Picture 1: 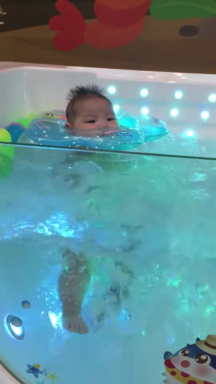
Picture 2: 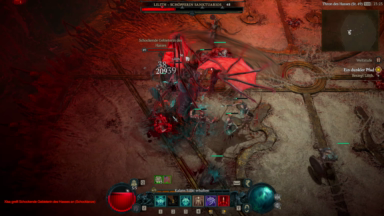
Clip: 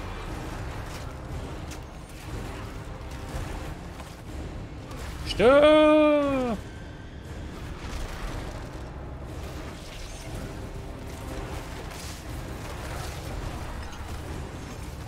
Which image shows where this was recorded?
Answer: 2